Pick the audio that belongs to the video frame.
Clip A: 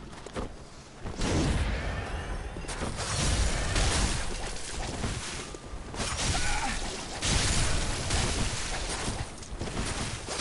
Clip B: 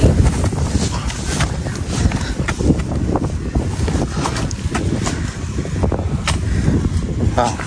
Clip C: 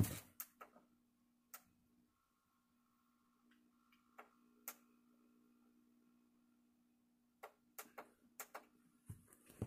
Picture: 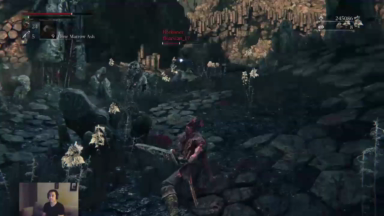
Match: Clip A